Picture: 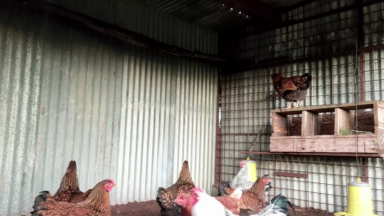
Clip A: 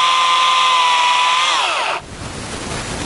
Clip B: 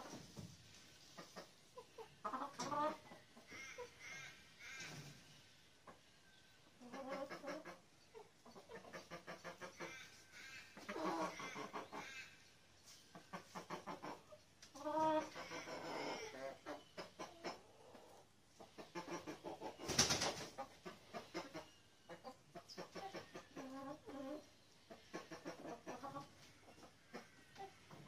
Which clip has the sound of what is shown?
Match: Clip B